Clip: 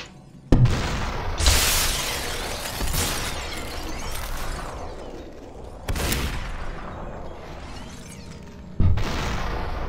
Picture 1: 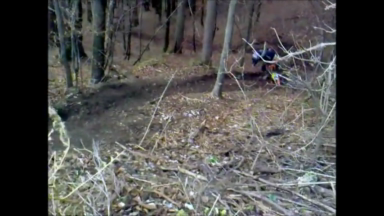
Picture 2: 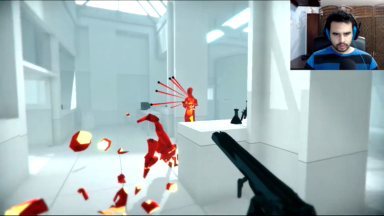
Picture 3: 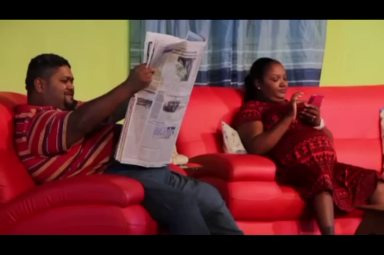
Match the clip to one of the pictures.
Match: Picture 2